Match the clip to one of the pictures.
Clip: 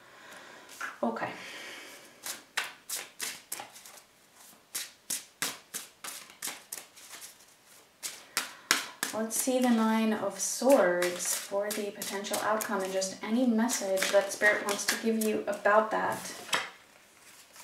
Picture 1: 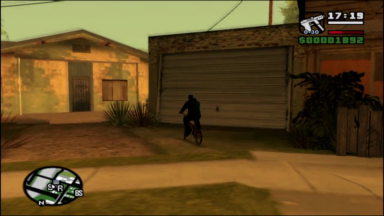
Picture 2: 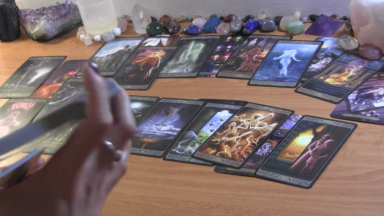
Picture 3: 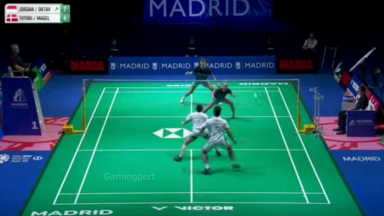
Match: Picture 2